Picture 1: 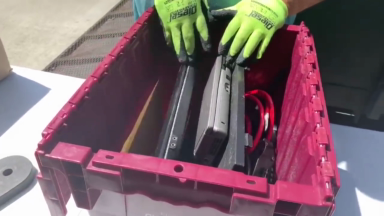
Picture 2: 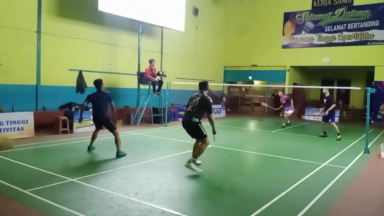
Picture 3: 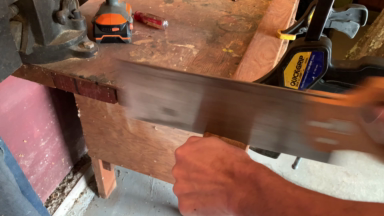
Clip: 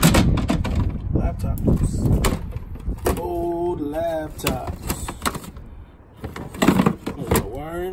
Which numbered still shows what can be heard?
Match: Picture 1